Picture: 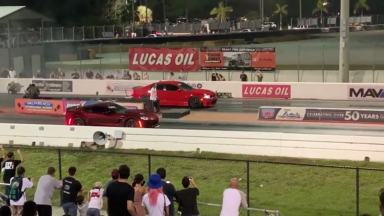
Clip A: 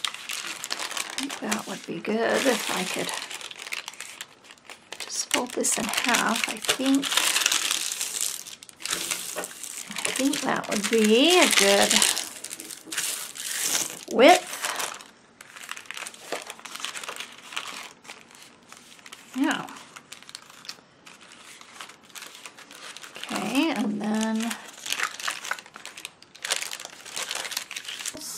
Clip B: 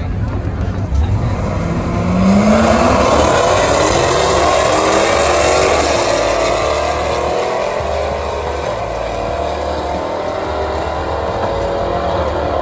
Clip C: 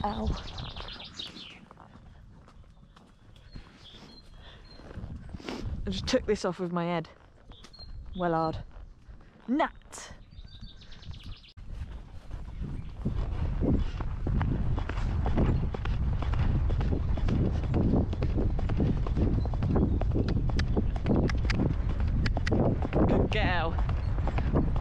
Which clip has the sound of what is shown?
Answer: B